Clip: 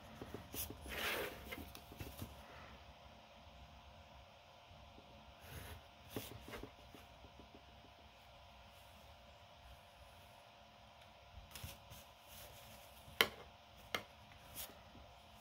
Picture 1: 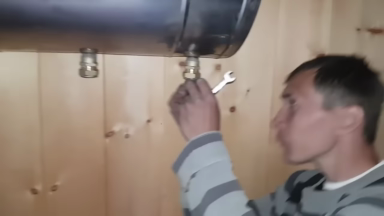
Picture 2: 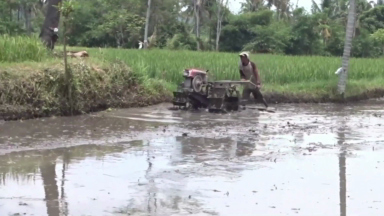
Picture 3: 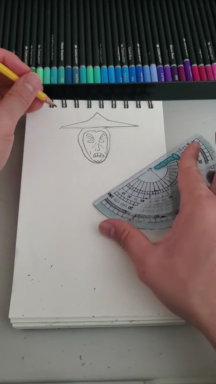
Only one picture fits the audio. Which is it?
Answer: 3